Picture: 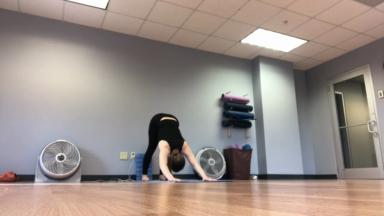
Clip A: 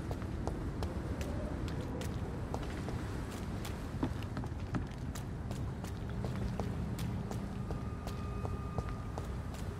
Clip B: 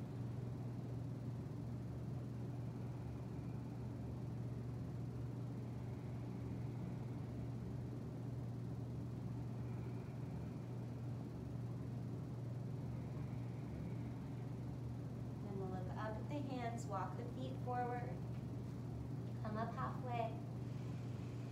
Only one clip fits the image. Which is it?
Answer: B